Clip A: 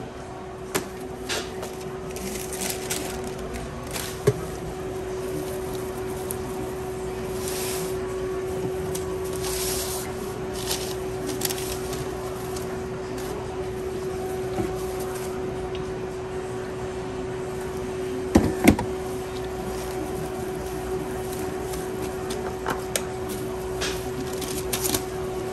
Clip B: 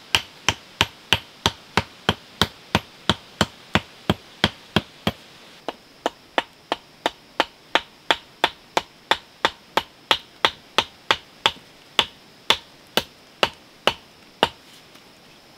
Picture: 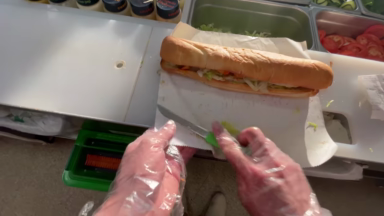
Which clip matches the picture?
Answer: A